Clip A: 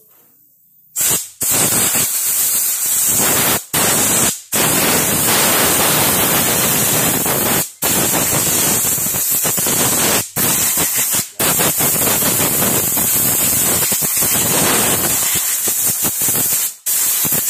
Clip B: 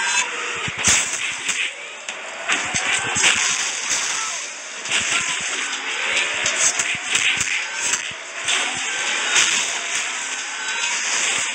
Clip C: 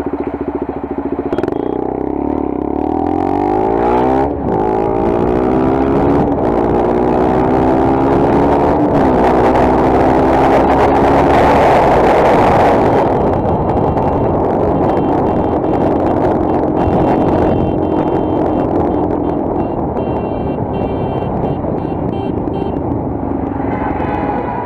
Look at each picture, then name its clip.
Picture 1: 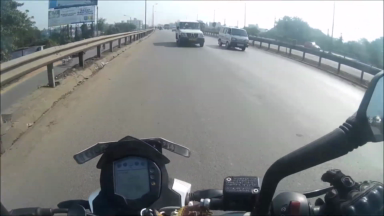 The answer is C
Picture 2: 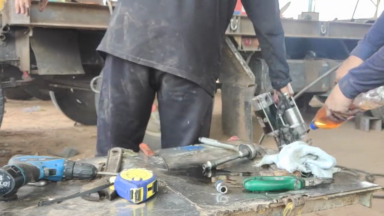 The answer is A